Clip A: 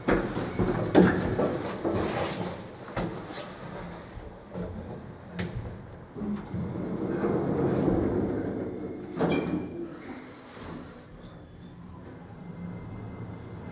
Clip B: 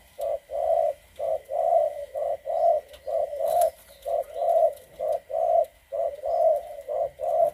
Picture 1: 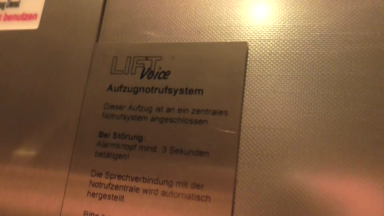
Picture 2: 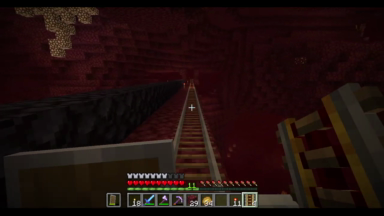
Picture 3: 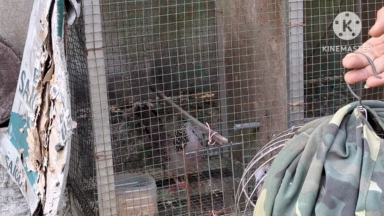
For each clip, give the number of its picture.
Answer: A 1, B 3